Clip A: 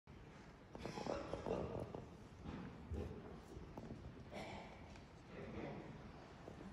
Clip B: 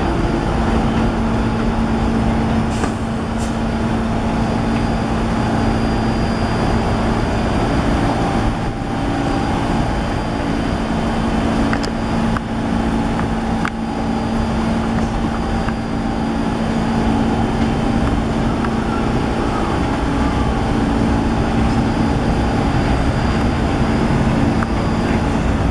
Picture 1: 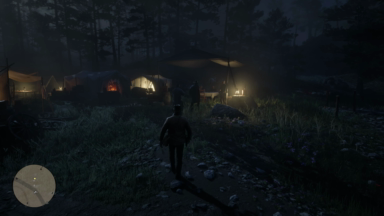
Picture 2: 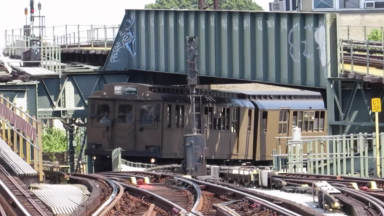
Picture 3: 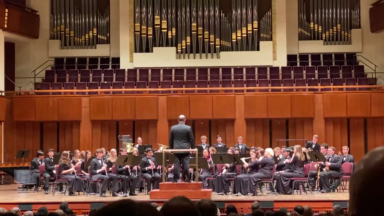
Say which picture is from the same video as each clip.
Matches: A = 3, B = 2